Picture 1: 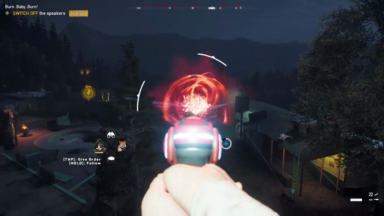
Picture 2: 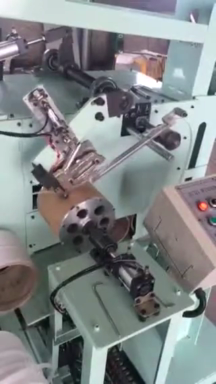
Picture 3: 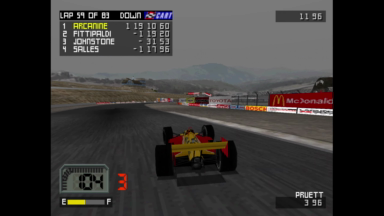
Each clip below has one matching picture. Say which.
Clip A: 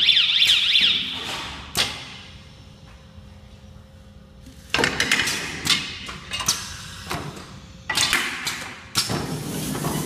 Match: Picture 2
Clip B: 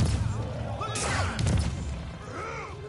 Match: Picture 1